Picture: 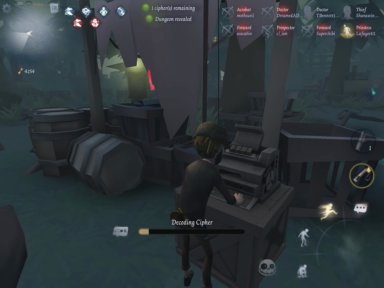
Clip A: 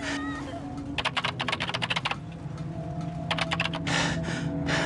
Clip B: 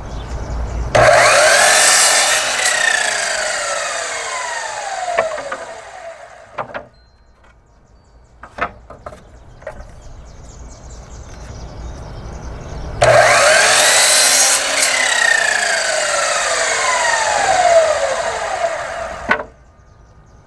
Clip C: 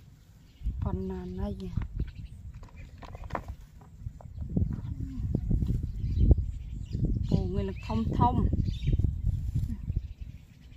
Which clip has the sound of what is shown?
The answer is A